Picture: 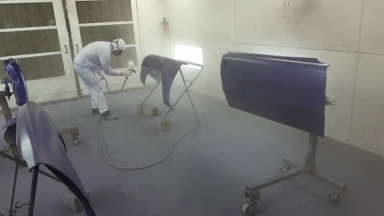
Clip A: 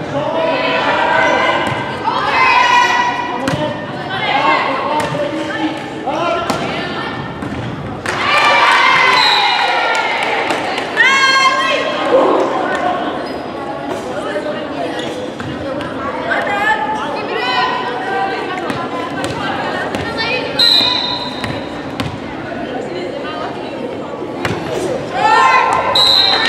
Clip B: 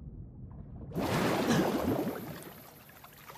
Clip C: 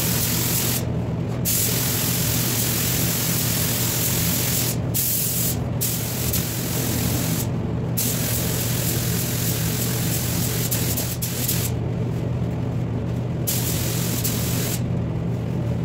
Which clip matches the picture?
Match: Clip C